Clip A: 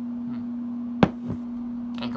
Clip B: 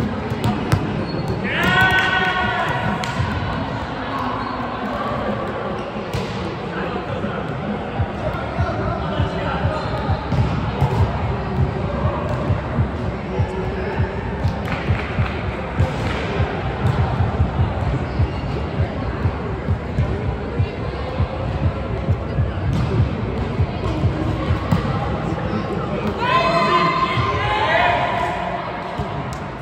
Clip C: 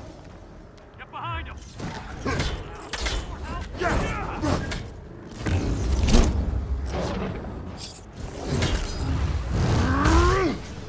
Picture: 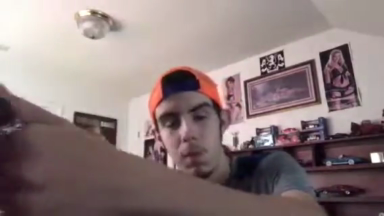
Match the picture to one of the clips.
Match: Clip A